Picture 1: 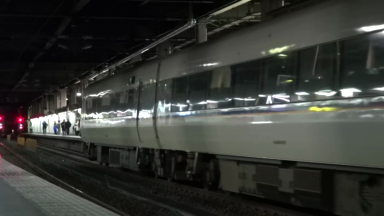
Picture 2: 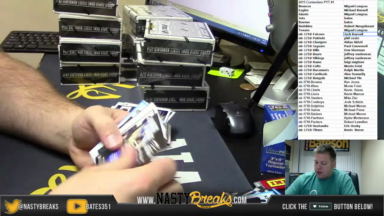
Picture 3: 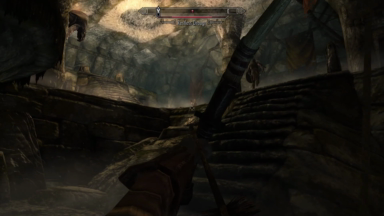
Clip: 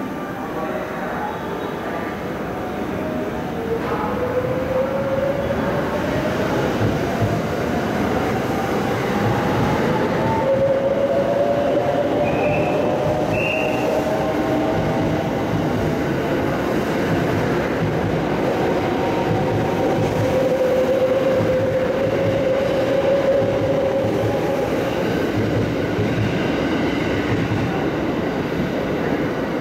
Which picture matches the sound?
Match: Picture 1